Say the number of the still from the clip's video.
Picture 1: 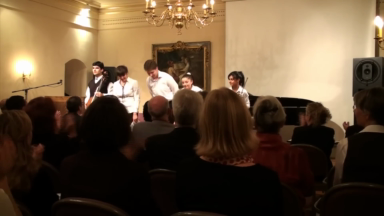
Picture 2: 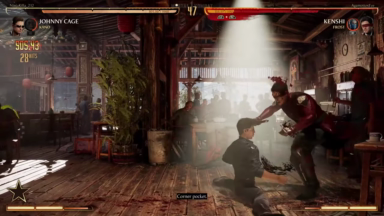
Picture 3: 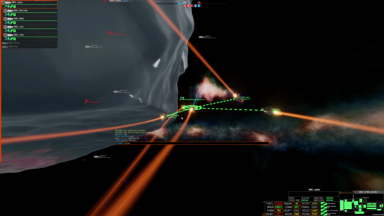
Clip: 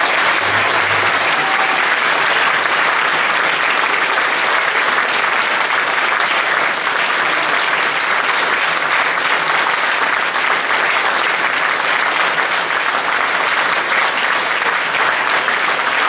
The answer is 1